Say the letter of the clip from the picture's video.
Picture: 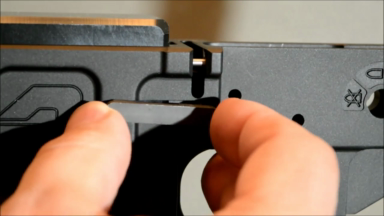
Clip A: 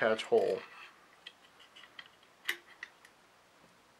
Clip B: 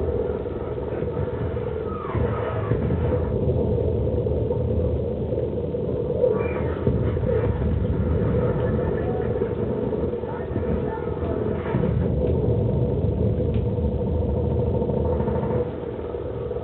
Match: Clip A